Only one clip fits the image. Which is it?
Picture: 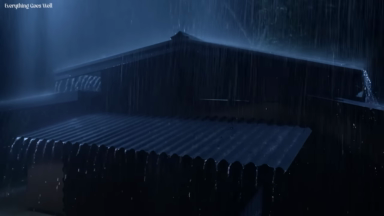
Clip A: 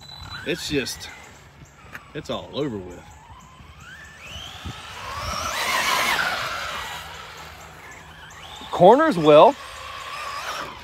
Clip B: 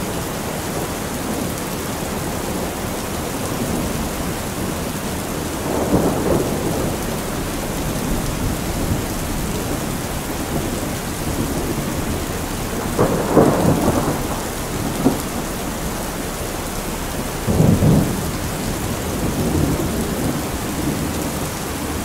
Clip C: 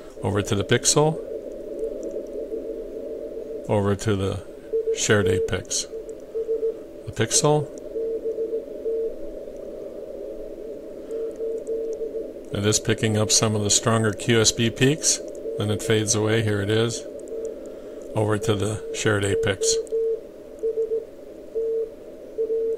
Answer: B